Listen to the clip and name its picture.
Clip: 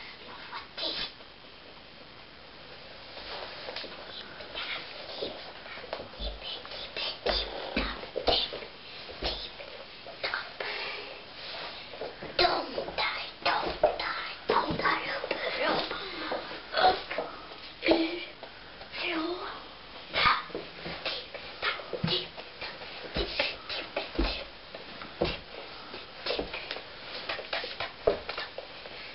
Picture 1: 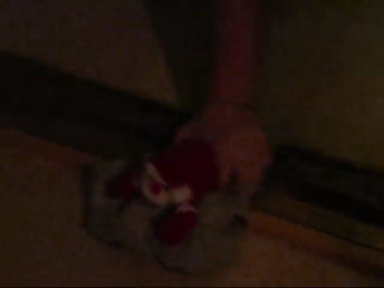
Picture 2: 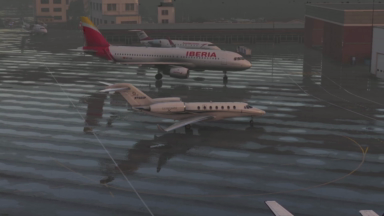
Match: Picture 1